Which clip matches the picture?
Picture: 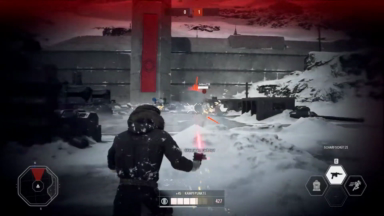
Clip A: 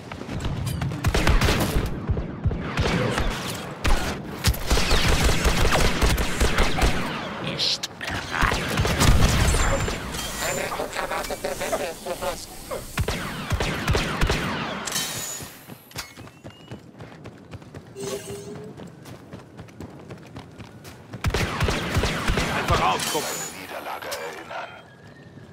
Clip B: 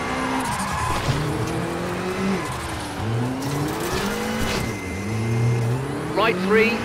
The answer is A